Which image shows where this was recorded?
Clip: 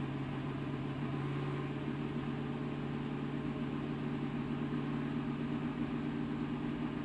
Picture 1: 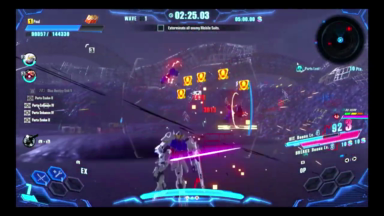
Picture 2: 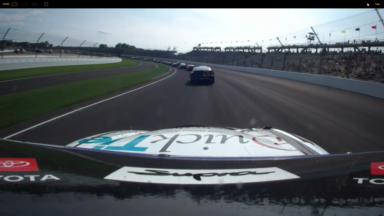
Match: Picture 2